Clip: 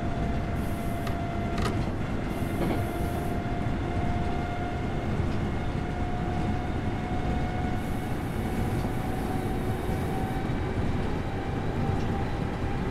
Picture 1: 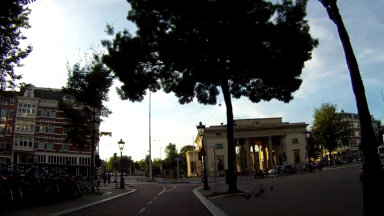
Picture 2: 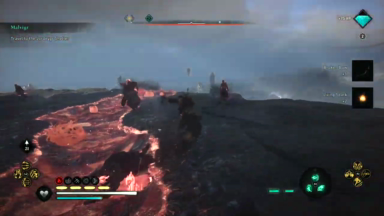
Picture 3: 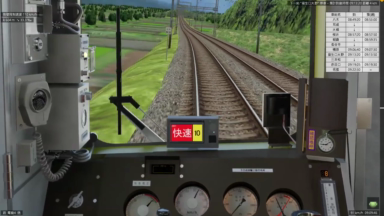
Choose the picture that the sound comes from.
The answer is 3